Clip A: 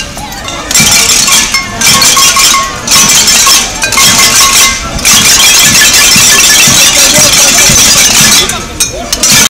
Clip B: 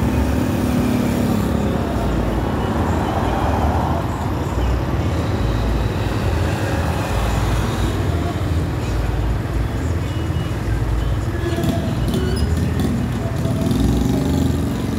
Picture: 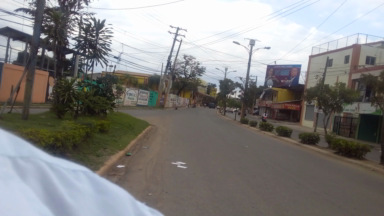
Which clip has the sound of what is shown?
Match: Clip B